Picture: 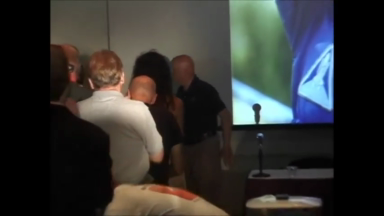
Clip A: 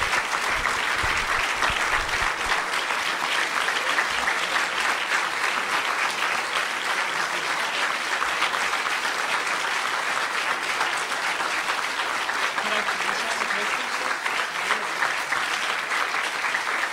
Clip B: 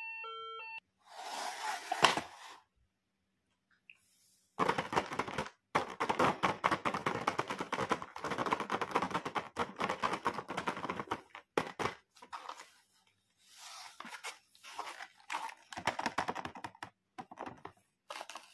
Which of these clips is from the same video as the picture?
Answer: A